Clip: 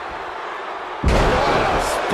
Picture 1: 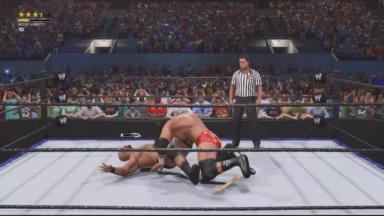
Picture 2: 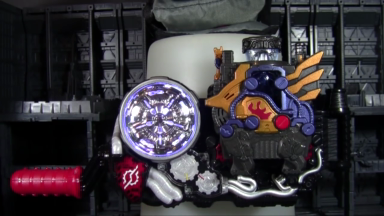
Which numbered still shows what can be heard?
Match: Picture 1